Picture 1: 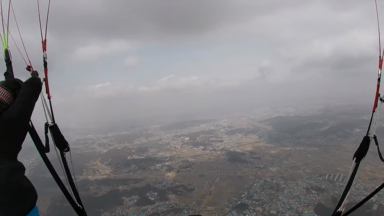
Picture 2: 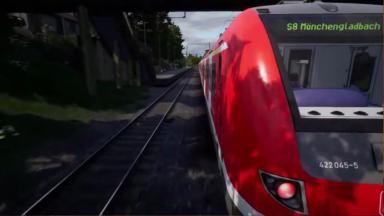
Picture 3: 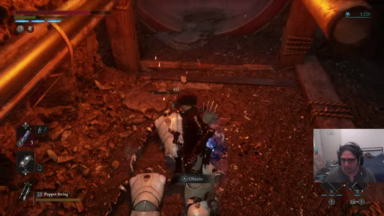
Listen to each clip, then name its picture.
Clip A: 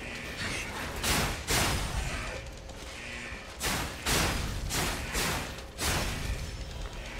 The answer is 3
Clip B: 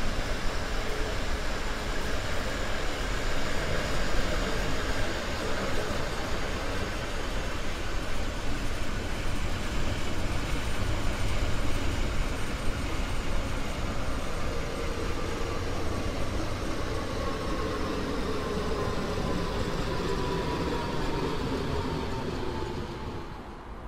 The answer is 2